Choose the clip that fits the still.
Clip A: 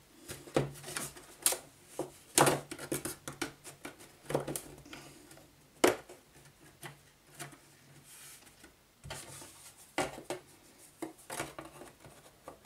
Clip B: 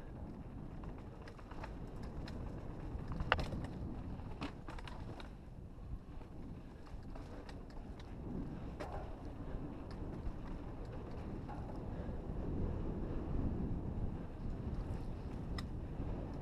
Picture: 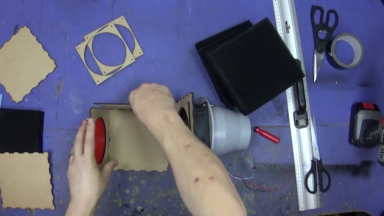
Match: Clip A